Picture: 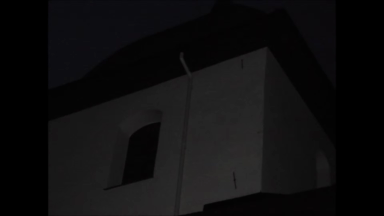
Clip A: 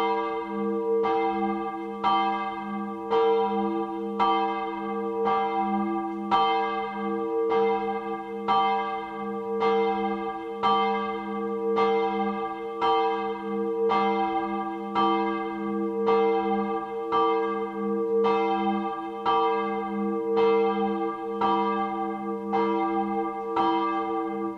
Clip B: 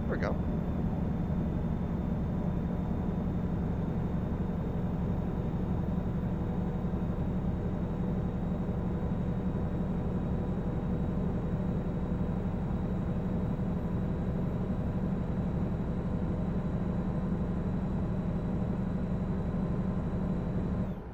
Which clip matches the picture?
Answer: A